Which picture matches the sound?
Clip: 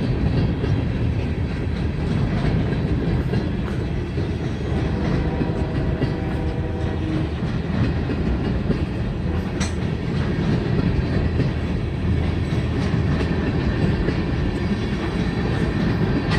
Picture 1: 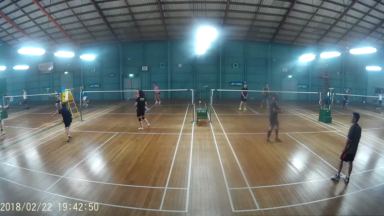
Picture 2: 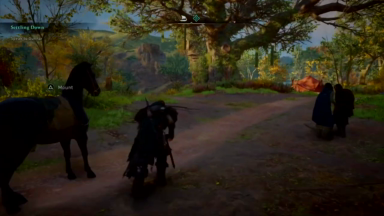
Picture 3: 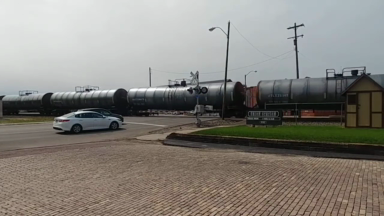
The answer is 3